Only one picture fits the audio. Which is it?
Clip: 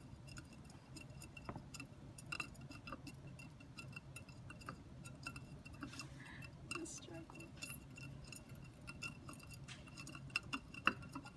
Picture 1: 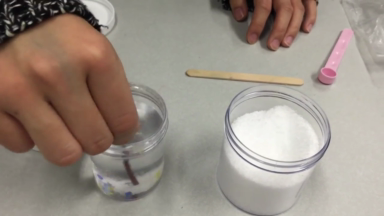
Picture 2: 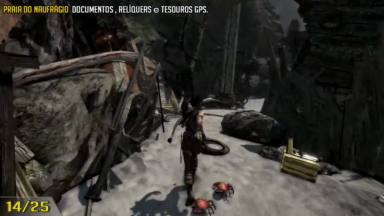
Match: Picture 1